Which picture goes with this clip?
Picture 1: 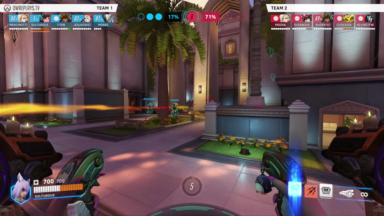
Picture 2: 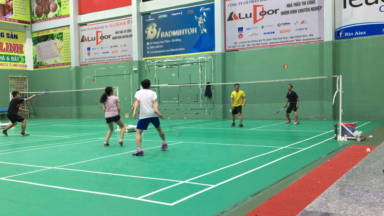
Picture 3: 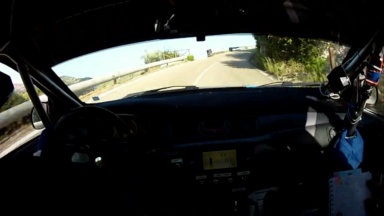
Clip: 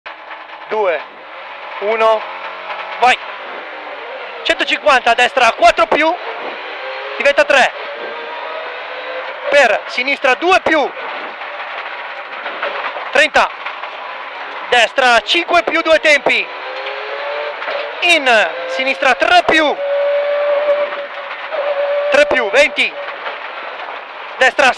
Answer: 3